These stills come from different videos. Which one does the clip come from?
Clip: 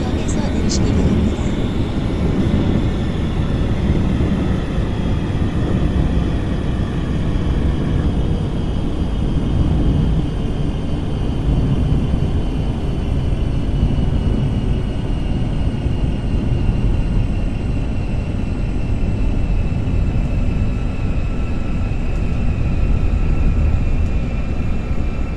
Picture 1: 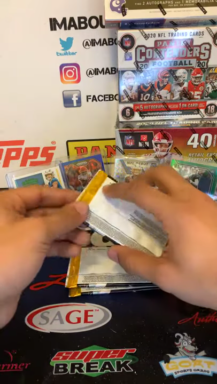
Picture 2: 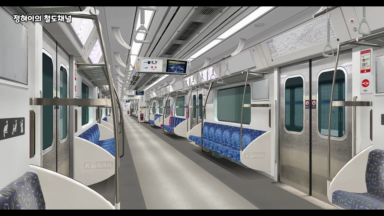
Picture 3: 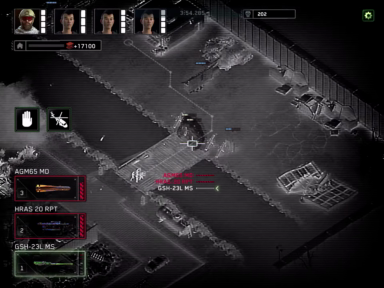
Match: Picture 2